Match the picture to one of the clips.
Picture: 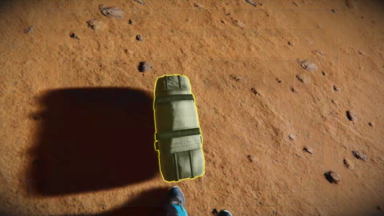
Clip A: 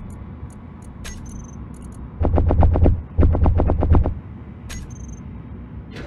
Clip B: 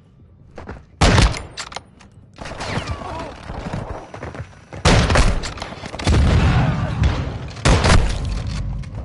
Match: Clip A